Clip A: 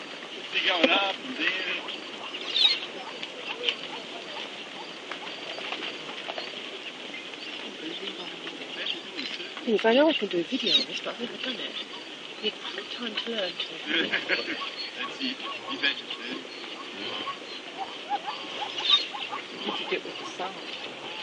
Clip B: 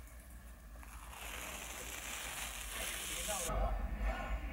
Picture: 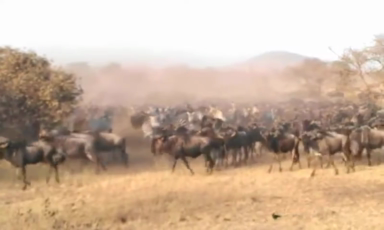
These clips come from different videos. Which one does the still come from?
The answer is A